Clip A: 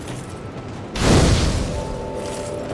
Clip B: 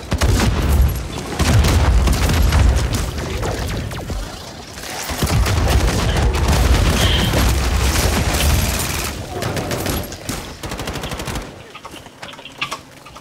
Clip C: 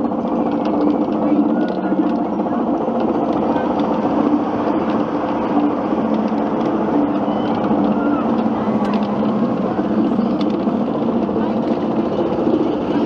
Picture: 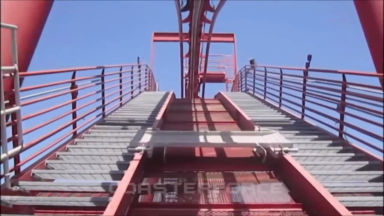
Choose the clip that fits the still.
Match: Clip C